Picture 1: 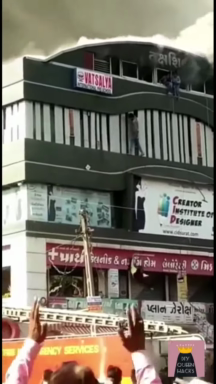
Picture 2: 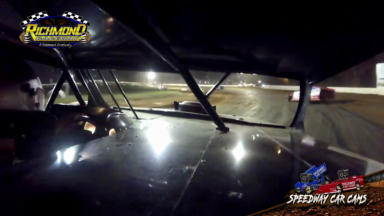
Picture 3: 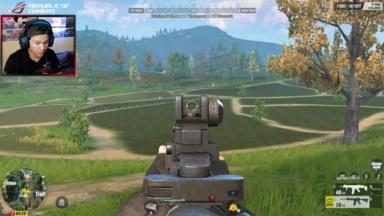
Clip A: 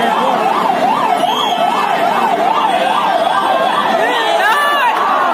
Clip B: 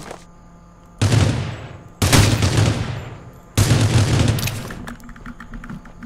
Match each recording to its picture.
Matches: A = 1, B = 3